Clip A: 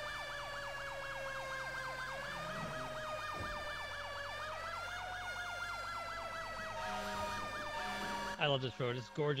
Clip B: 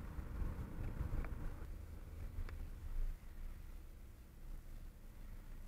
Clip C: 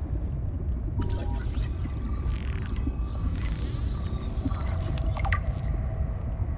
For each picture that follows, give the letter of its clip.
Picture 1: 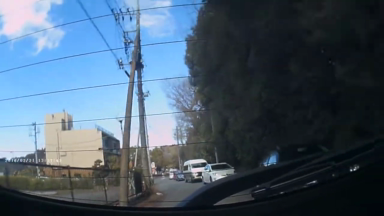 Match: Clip B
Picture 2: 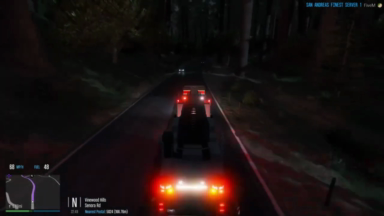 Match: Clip A